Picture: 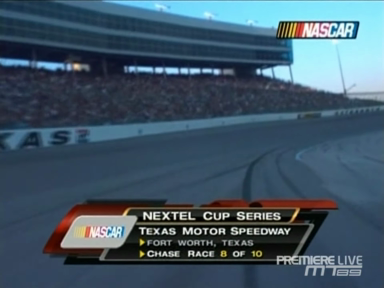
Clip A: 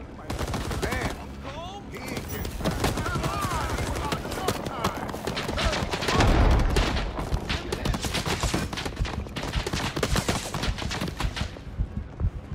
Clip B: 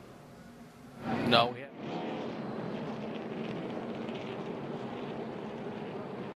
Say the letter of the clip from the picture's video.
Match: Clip B